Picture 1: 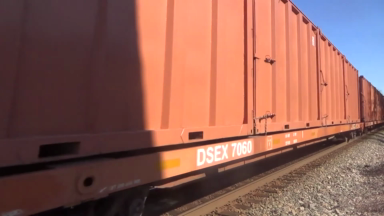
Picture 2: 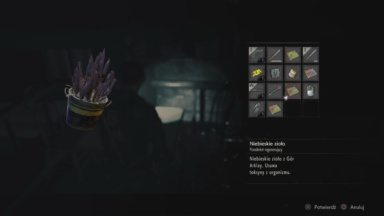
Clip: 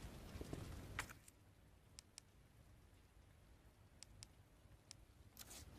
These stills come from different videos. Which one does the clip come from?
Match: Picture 2